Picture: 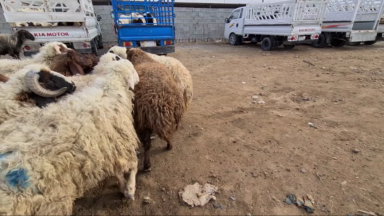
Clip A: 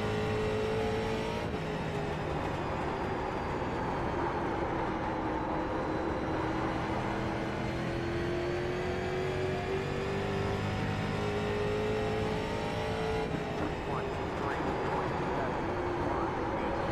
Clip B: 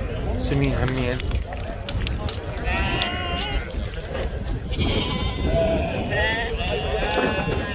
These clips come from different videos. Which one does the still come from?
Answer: B